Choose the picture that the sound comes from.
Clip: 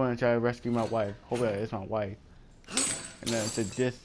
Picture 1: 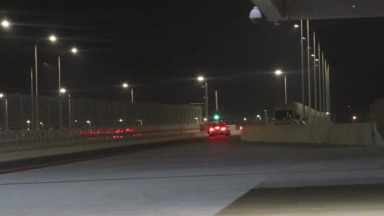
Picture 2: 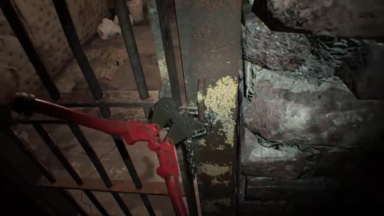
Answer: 2